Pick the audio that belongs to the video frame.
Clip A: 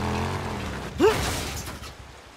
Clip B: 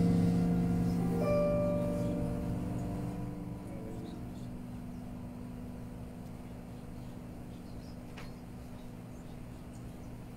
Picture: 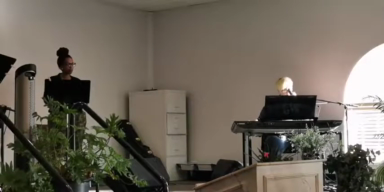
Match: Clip B